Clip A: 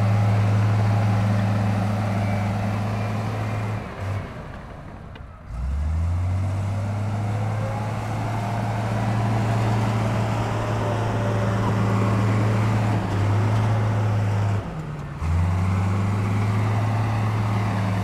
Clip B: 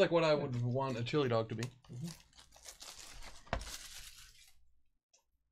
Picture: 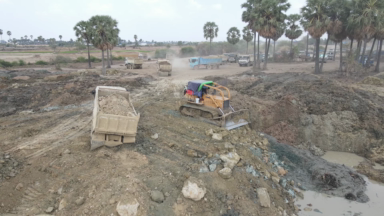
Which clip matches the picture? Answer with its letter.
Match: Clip A